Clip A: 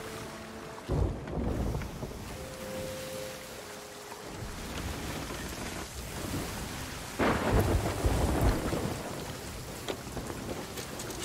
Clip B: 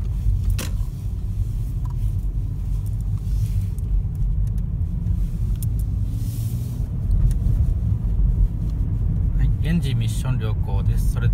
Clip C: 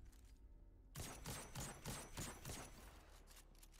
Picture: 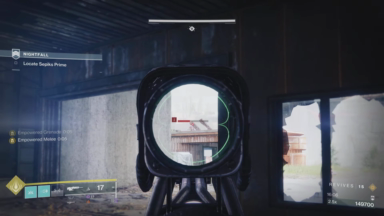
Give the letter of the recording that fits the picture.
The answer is C